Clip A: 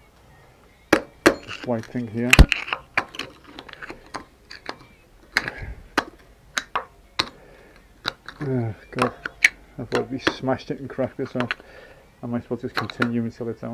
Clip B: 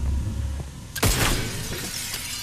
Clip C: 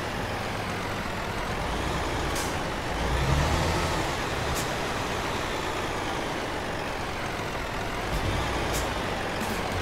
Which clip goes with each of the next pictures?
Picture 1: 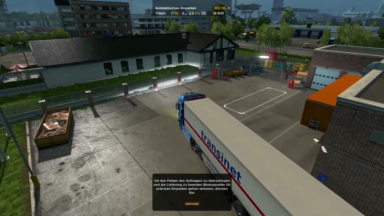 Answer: C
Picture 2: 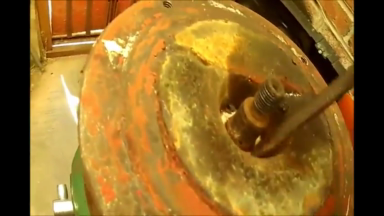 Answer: A